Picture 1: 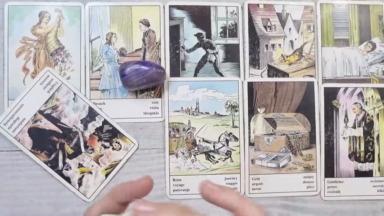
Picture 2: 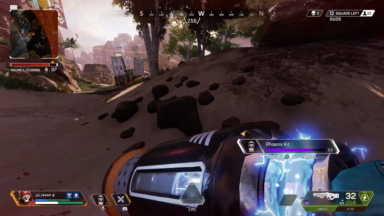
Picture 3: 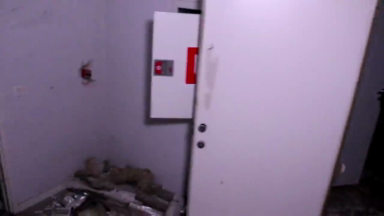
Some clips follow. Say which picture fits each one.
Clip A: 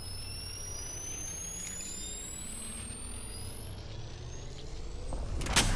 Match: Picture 2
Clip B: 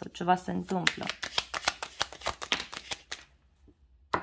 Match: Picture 1